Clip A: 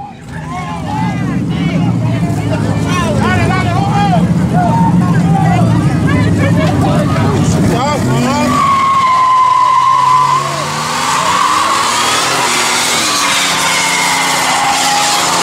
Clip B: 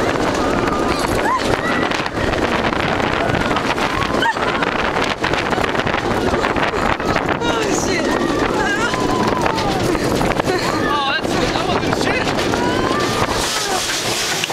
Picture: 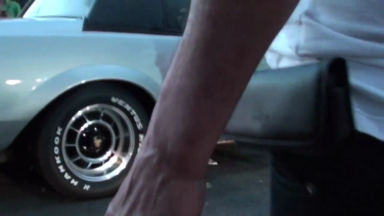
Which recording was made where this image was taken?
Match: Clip A